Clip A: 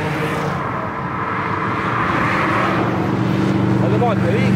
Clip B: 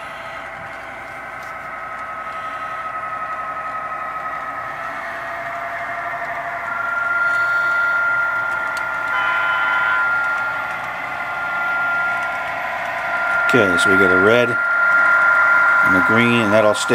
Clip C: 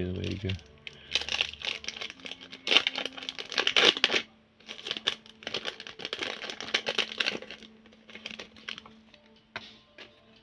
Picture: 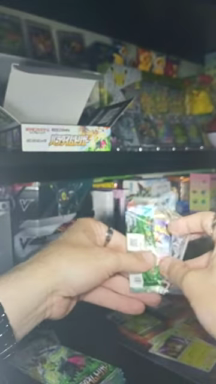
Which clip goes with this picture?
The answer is C